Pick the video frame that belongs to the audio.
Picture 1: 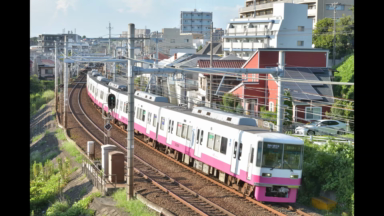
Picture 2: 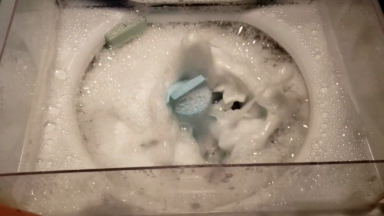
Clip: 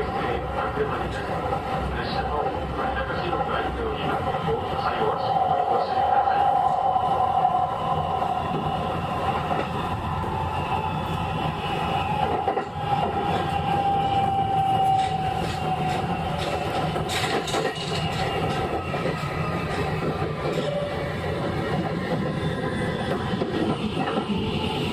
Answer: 1